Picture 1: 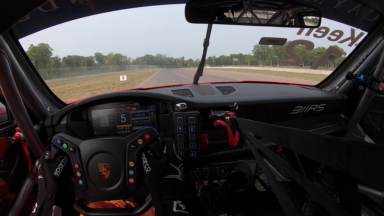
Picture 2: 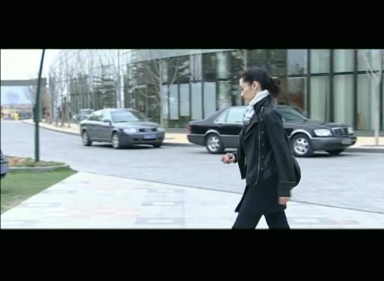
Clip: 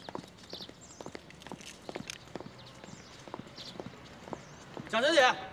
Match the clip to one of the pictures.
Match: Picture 2